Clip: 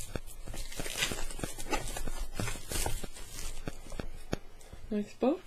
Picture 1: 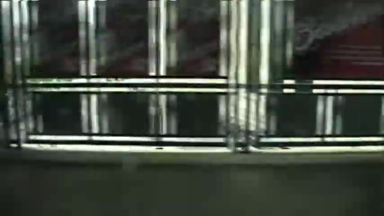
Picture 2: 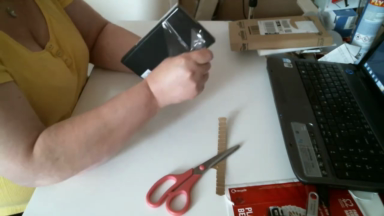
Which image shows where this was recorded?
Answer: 2